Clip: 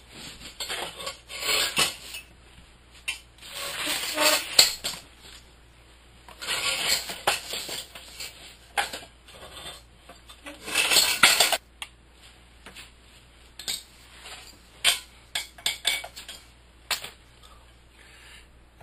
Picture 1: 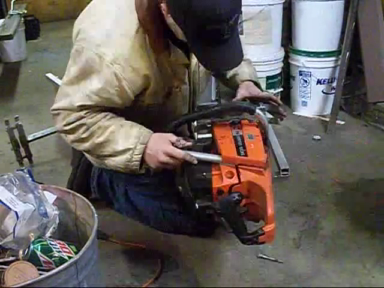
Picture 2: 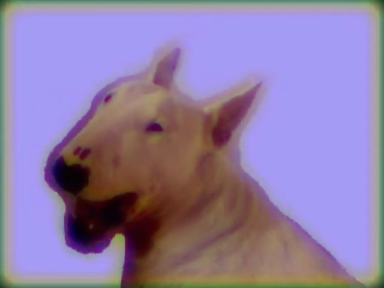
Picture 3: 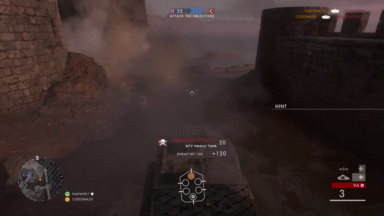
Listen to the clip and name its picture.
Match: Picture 1